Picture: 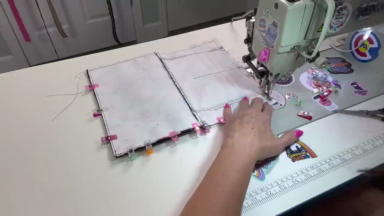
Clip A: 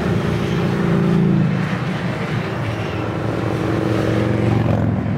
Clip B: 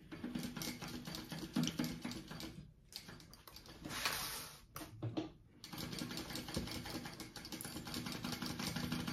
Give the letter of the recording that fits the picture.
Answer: B